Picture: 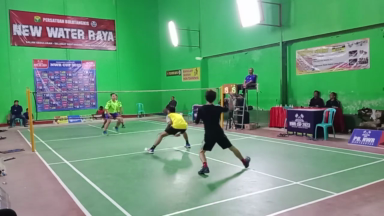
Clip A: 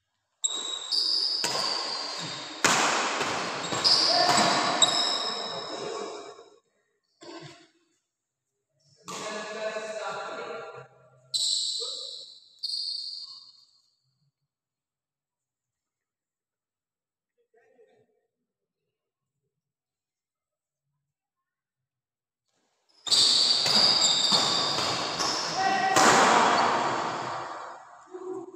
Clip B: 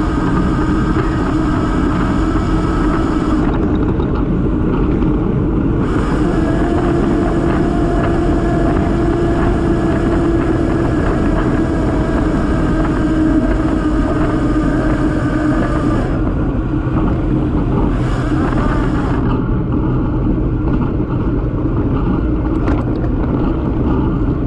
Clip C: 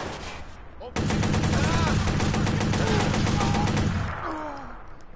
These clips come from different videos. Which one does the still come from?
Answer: A